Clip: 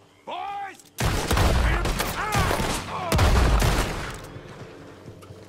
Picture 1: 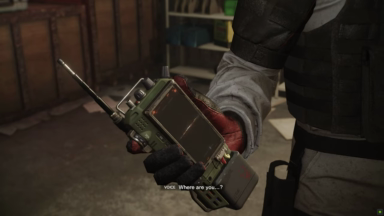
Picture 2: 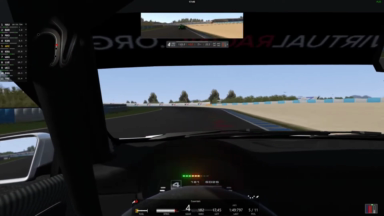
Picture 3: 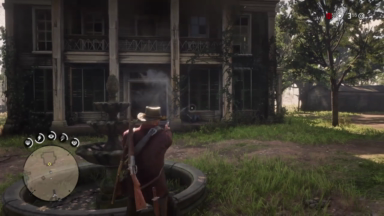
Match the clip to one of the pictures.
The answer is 3